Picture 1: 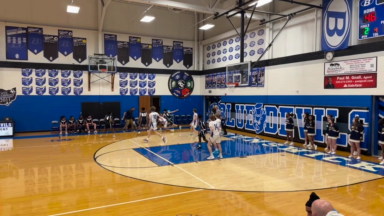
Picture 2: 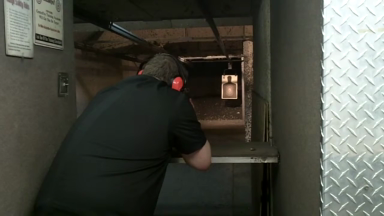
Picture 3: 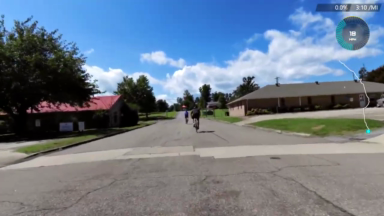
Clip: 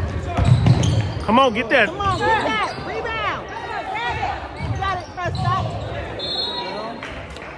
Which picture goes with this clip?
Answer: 1